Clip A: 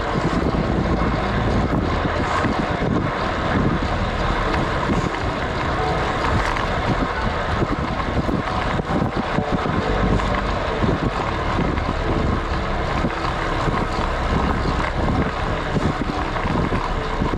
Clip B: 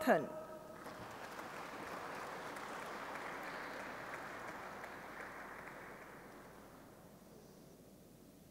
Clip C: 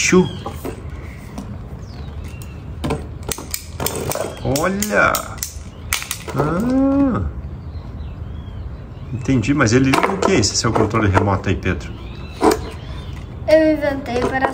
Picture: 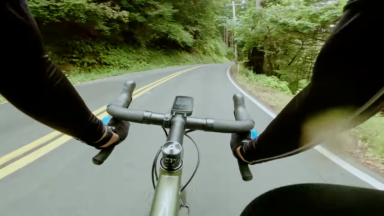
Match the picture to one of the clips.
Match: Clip A